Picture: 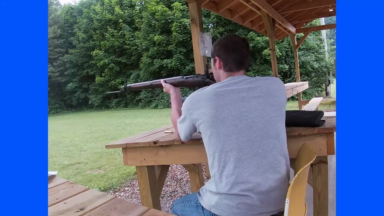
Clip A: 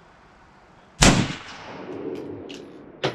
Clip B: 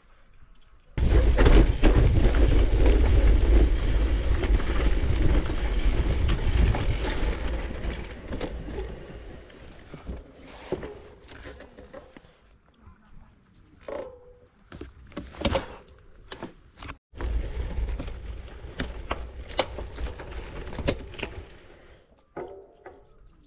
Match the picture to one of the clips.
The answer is A